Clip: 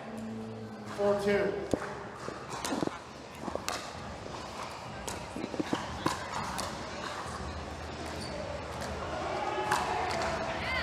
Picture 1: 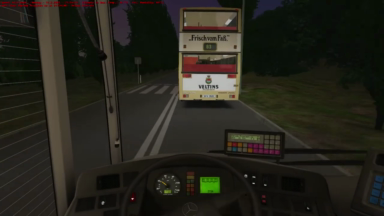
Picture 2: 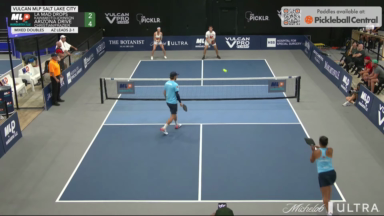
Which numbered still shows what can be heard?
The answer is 2